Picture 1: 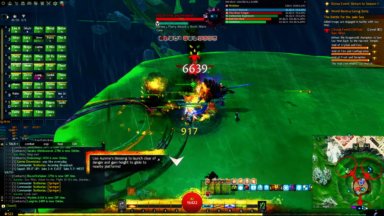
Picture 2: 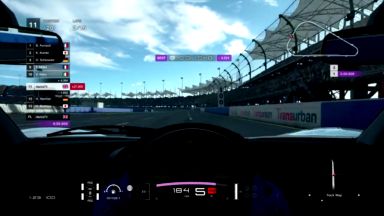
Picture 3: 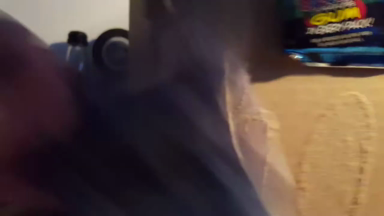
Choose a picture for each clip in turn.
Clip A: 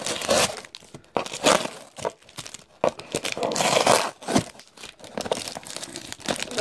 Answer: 3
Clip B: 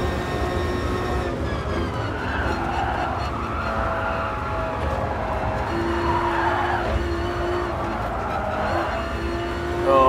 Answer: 2